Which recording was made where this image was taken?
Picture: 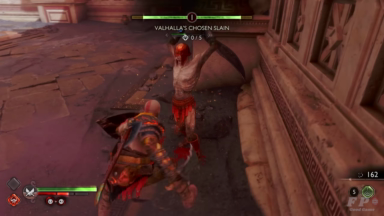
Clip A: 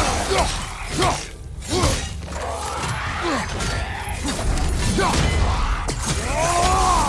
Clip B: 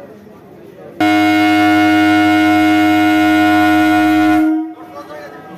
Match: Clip A